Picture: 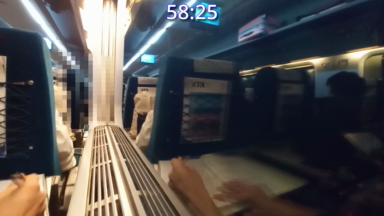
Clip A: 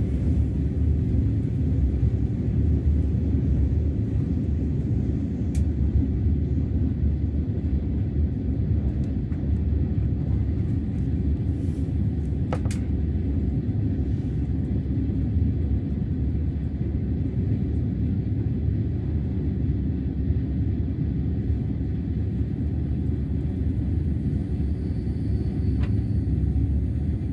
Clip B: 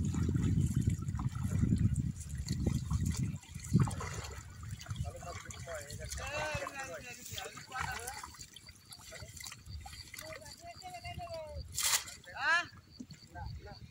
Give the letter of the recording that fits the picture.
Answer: A